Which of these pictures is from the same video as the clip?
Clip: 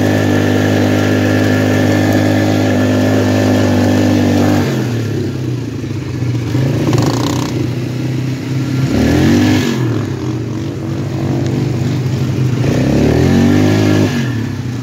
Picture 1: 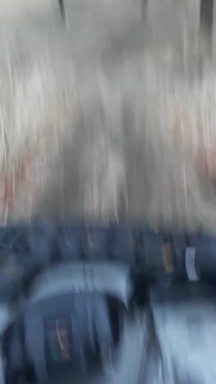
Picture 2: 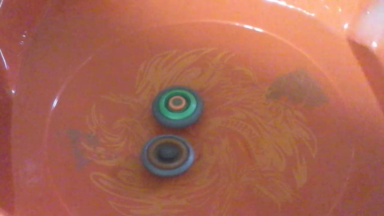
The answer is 1